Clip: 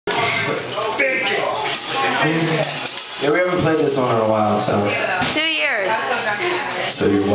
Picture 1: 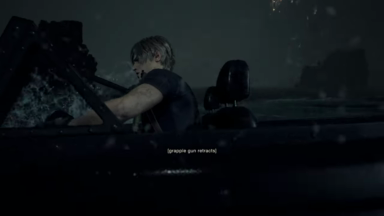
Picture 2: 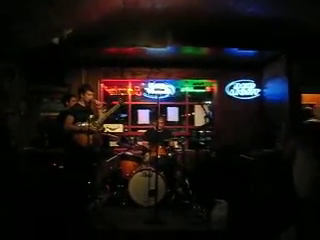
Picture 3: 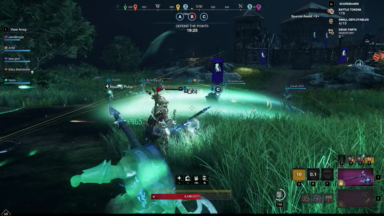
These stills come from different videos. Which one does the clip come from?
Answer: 2